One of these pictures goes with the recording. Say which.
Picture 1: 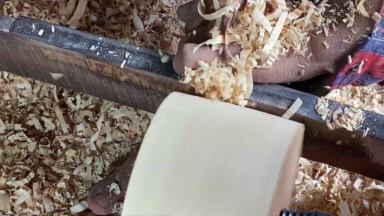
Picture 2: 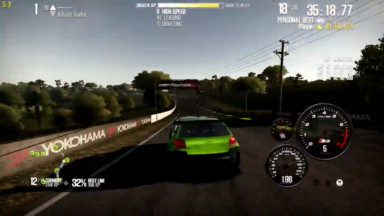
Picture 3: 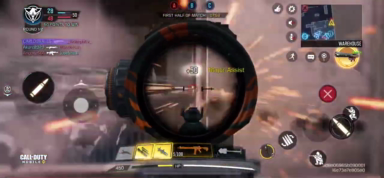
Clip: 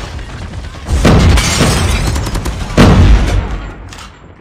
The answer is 3